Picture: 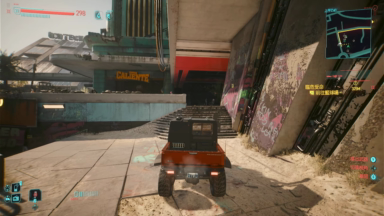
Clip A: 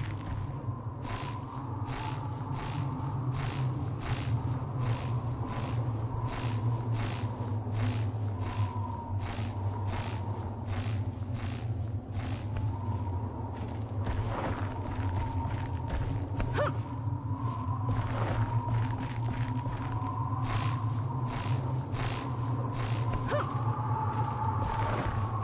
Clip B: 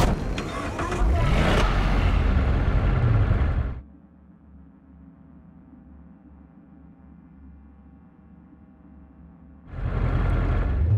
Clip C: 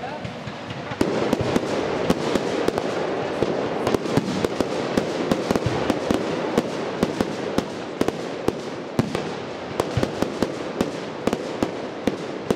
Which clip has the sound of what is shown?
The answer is B